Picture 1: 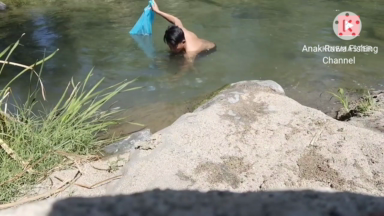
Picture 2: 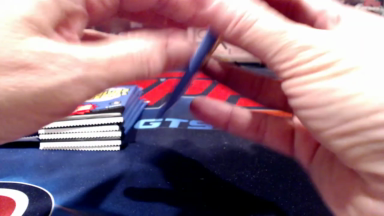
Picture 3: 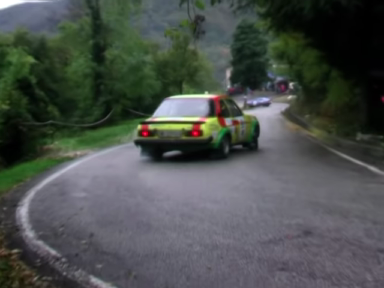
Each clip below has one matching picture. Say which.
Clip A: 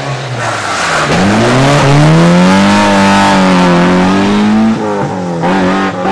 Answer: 3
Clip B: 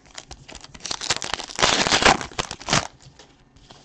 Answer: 2